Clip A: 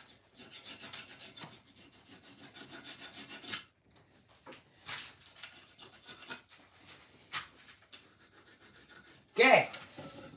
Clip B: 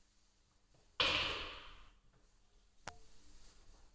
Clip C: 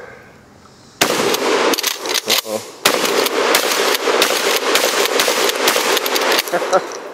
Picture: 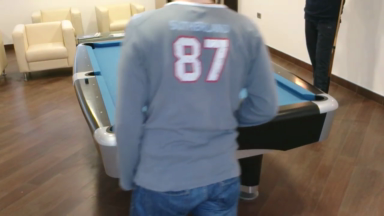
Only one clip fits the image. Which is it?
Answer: B